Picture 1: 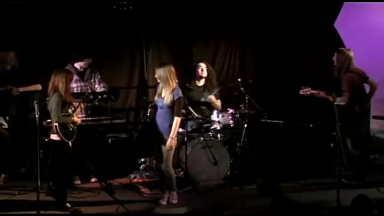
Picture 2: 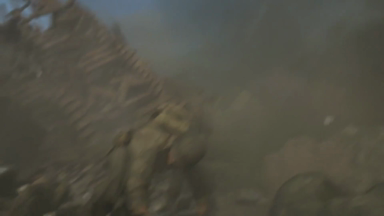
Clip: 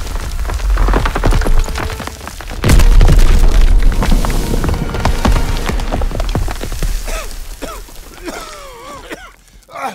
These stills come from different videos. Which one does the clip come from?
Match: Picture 2